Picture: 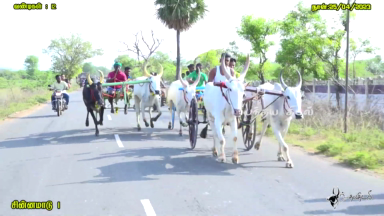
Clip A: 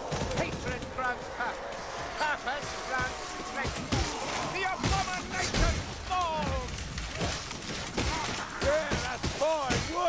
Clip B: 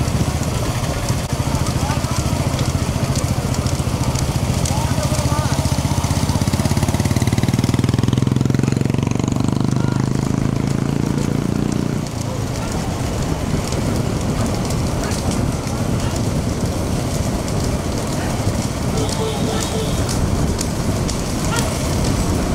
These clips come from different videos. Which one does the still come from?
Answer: B